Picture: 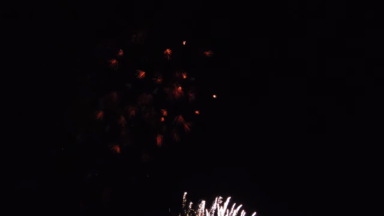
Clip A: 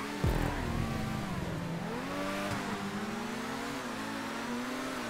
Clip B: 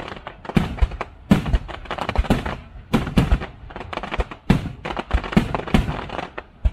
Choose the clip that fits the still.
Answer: B